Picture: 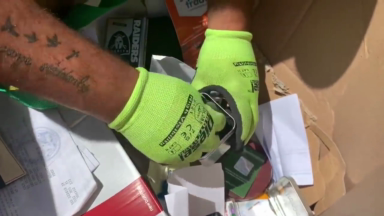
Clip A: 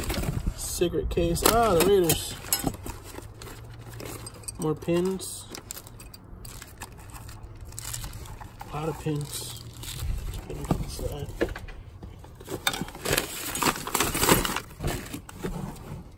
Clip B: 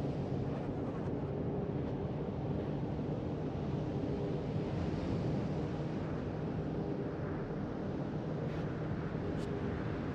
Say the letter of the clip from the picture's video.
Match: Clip A